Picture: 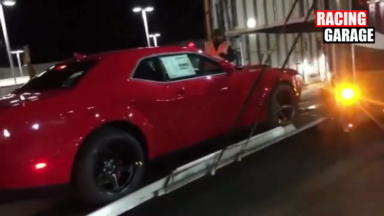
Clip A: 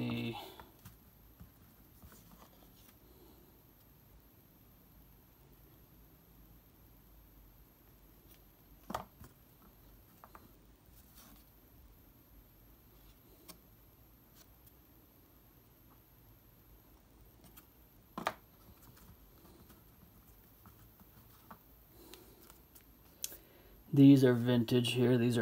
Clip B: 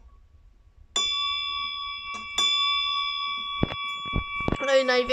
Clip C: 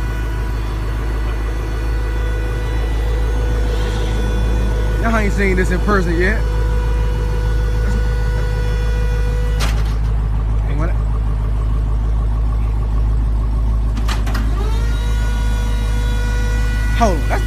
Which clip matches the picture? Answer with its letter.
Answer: C